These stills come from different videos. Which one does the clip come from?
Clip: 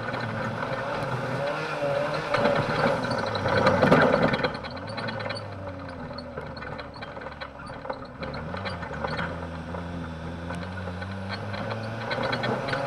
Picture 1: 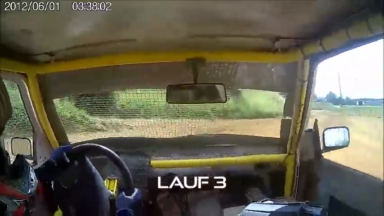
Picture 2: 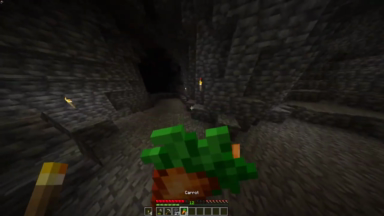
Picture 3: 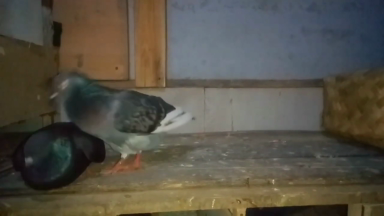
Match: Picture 1